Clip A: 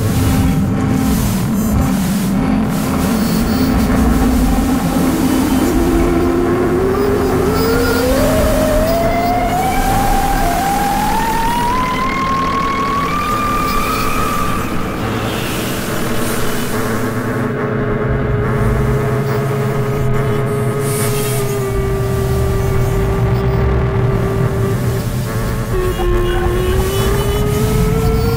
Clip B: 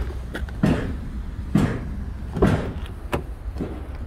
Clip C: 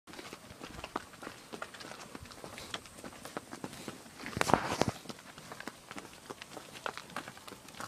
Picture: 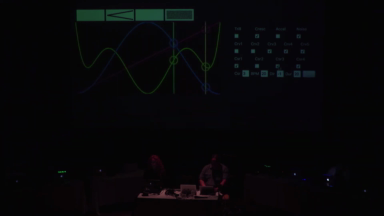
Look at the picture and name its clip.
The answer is A